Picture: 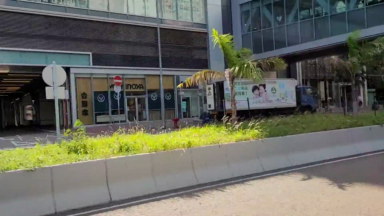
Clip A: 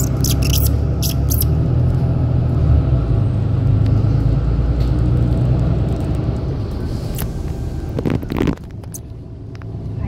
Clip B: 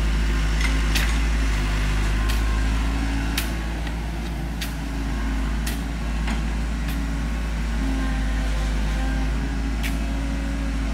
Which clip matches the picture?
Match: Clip A